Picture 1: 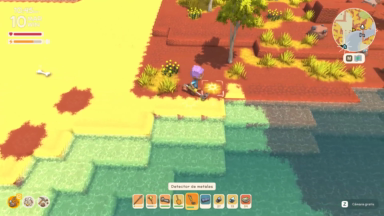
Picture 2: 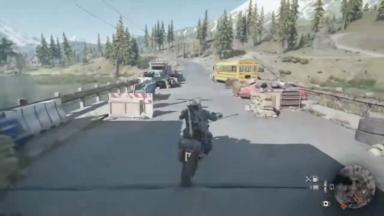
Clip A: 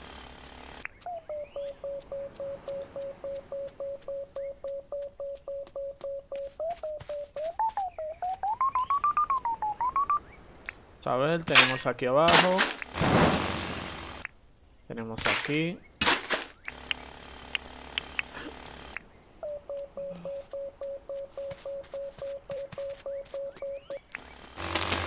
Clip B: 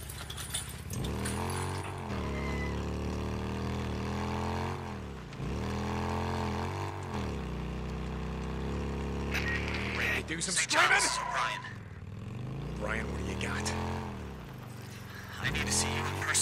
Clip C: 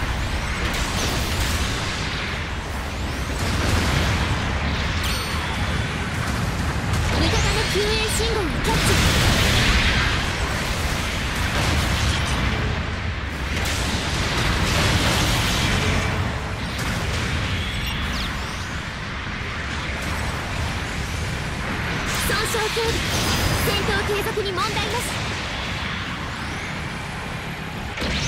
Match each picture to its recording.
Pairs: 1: A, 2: B